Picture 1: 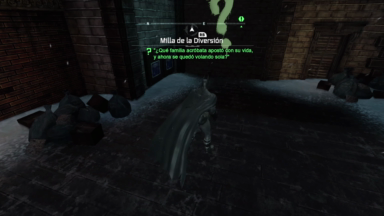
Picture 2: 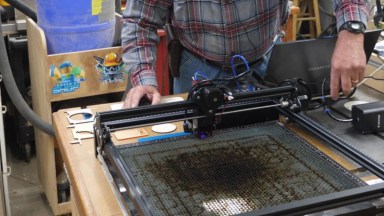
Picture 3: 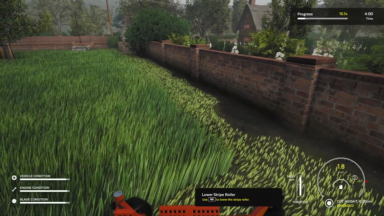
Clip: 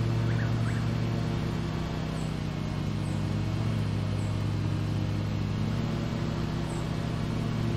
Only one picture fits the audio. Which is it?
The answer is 3